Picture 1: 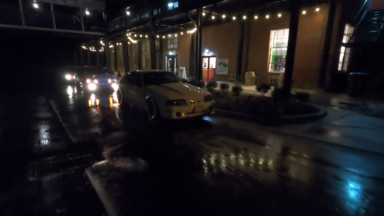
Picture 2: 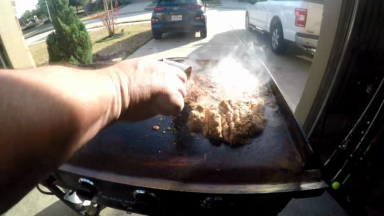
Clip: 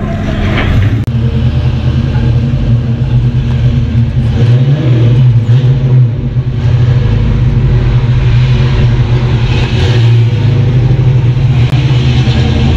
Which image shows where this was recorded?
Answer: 1